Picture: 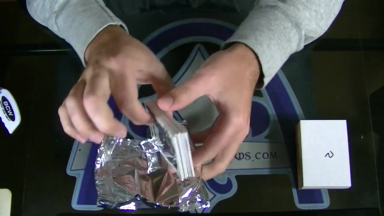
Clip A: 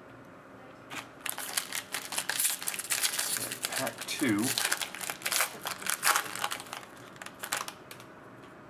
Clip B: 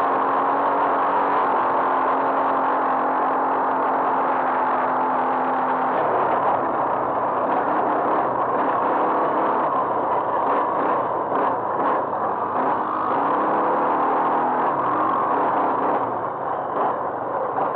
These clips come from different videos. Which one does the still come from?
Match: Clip A